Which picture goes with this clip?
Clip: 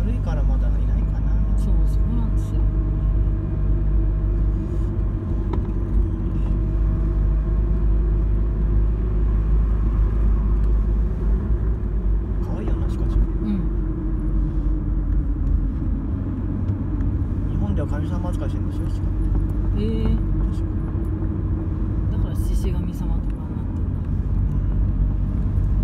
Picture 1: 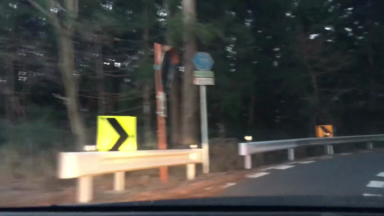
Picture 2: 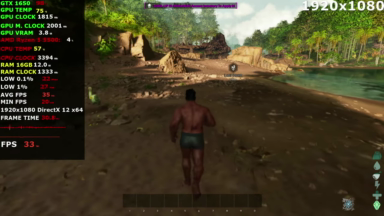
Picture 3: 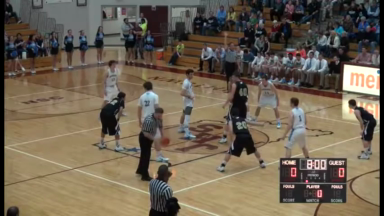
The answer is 1